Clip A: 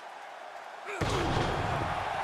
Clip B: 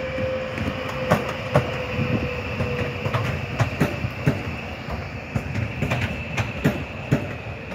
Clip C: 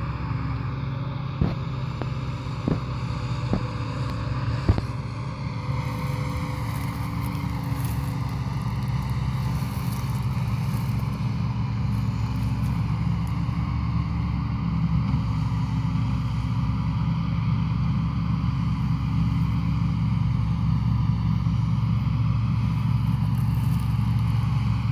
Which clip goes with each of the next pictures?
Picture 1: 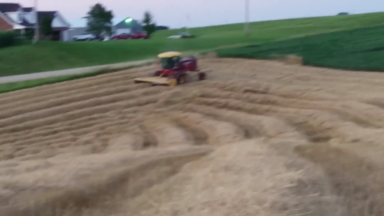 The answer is C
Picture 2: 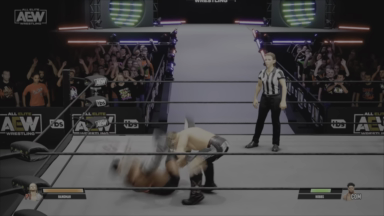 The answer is A